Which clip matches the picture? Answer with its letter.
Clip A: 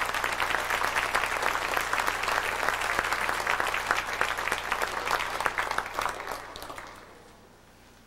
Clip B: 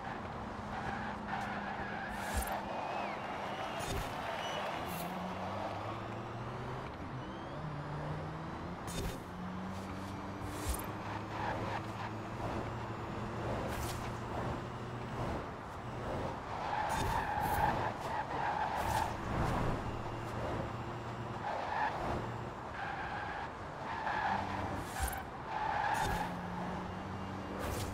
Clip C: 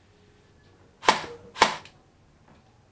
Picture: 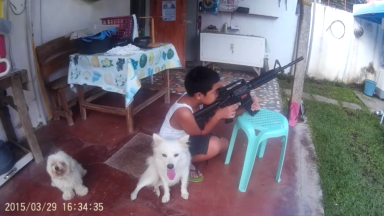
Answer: C